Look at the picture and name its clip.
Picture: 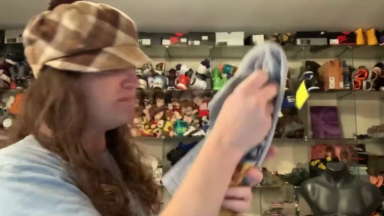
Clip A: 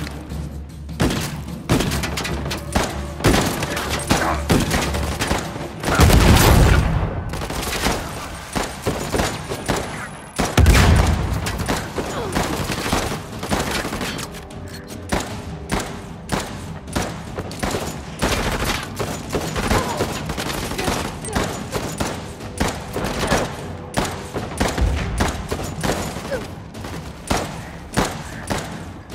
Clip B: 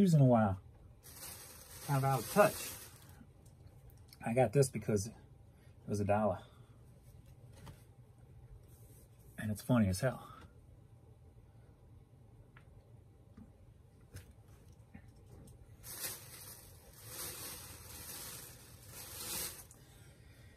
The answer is B